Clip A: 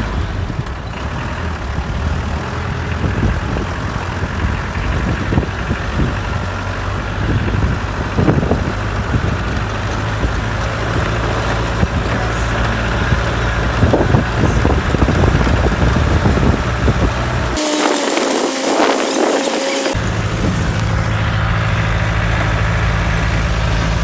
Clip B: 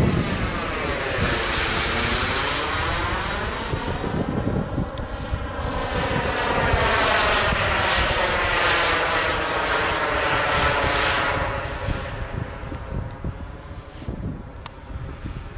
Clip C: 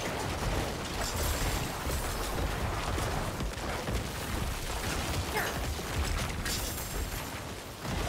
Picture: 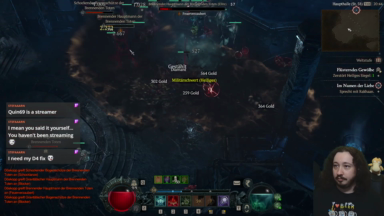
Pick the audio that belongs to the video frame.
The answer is C